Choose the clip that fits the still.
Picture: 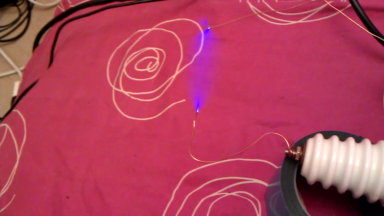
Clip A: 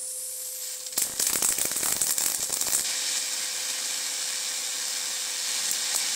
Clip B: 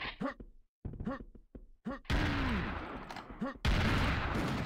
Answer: A